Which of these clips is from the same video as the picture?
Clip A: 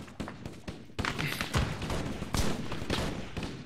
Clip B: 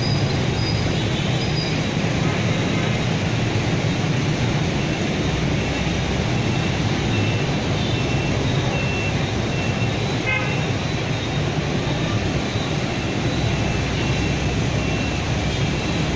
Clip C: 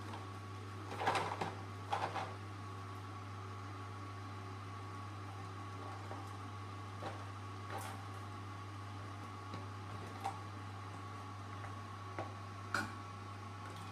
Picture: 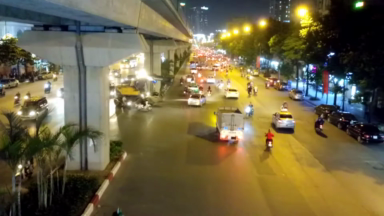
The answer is B